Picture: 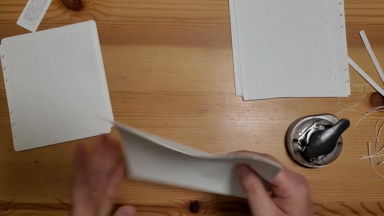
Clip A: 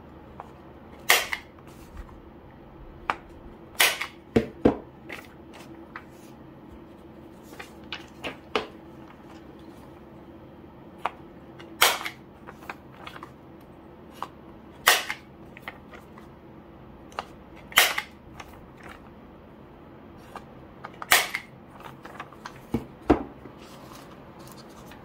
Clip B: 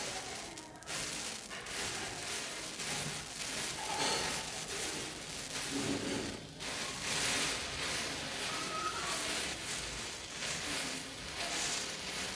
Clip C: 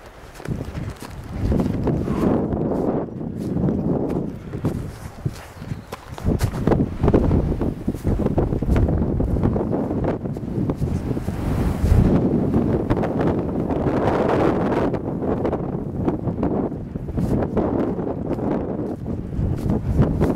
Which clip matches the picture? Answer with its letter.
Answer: A